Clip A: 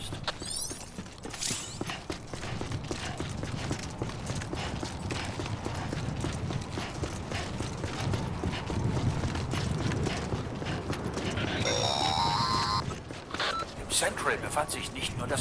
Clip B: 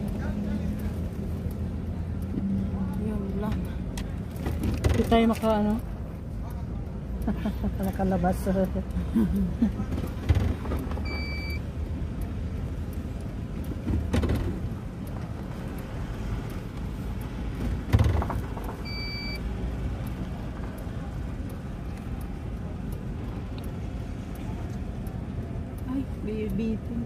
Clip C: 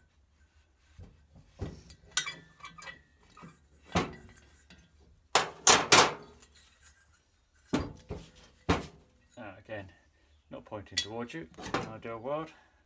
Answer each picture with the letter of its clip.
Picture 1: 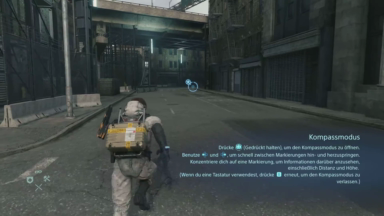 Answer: A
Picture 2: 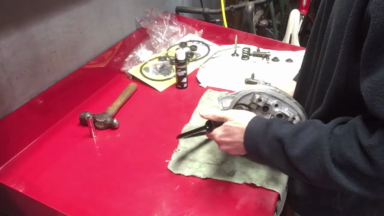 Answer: C